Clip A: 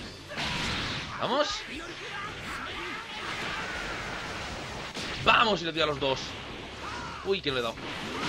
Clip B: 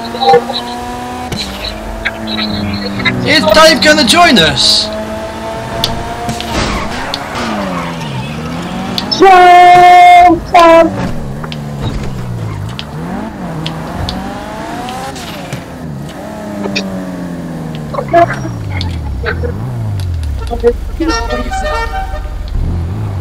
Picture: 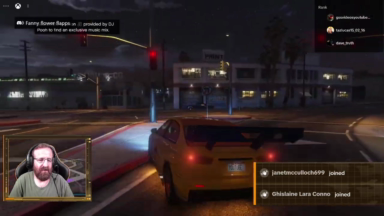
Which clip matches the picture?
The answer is B